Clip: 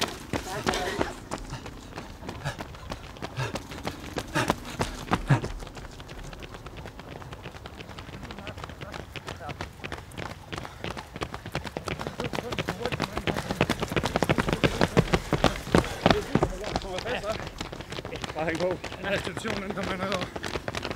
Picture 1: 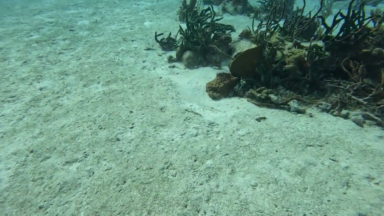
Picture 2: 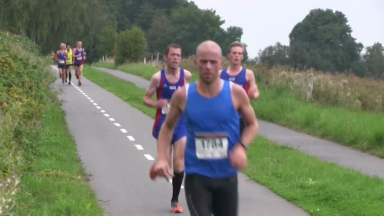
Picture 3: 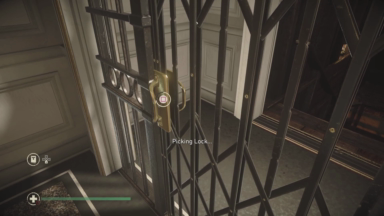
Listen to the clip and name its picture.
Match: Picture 2